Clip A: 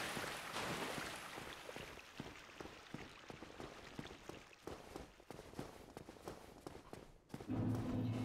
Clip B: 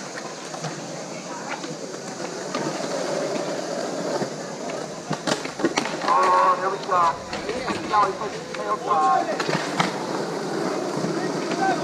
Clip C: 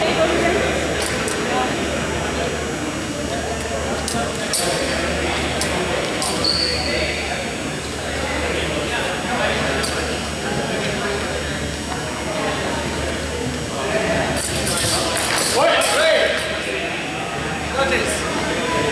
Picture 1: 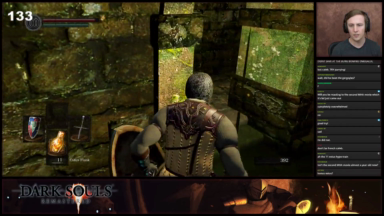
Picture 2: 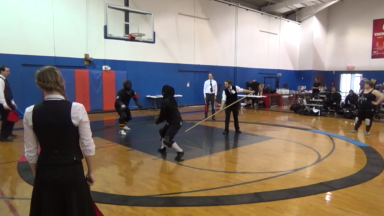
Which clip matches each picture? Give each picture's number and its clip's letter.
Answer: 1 A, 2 C